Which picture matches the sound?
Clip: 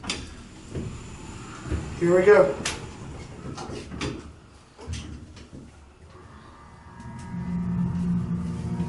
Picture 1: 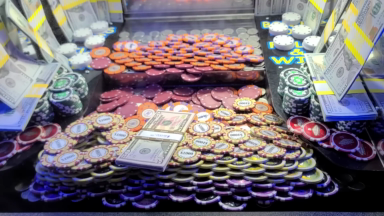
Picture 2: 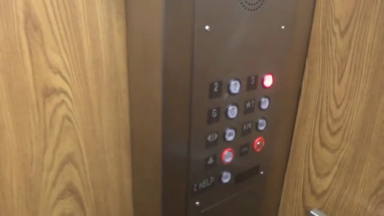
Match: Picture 2